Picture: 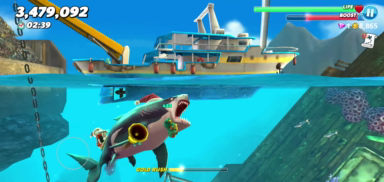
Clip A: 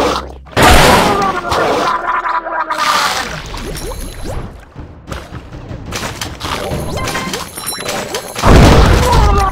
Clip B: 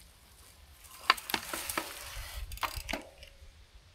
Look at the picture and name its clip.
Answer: A